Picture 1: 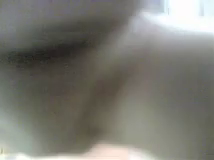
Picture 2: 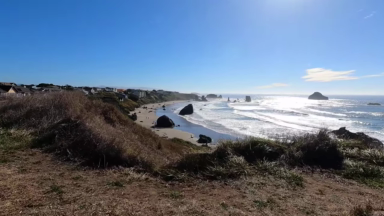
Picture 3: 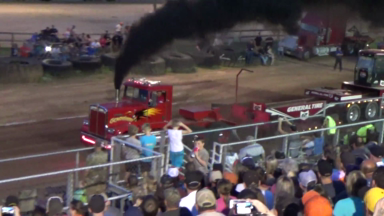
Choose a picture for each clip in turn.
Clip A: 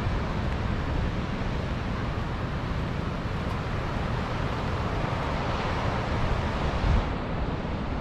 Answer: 2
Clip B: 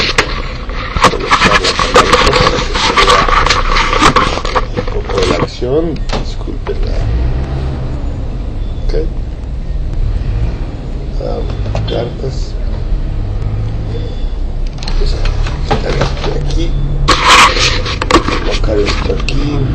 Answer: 1